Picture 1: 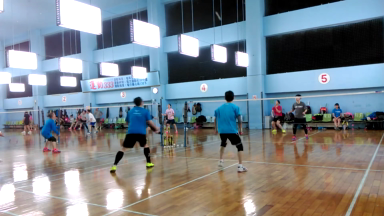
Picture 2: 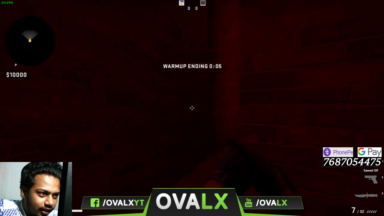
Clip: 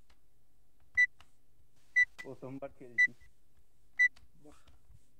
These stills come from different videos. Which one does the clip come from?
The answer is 2